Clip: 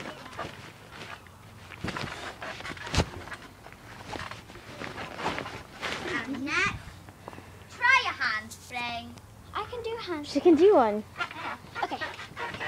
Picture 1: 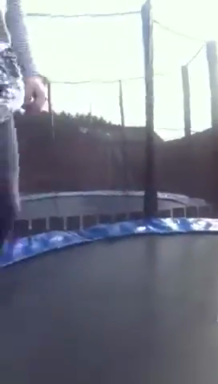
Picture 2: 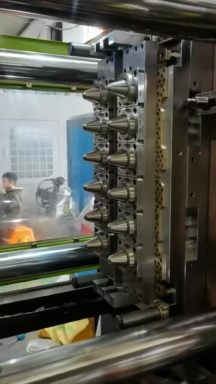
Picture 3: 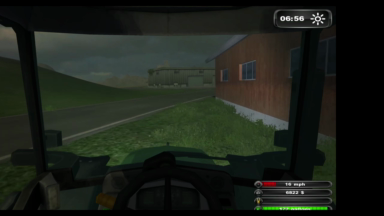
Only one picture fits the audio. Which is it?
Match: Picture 1